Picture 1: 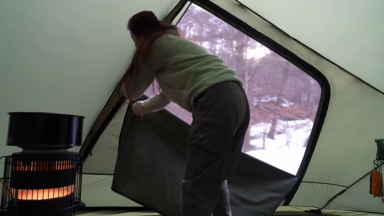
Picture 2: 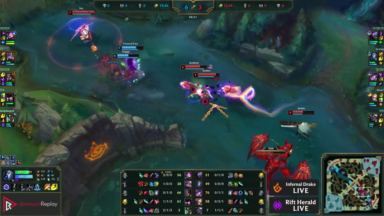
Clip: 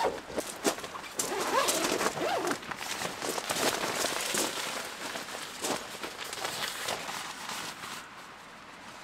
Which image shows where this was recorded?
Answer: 1